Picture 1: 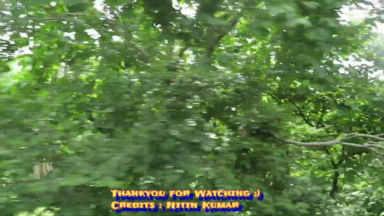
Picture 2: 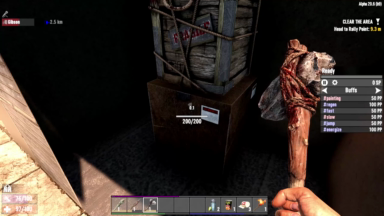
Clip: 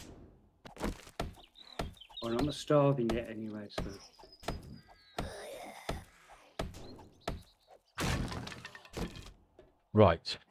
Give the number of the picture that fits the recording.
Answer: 2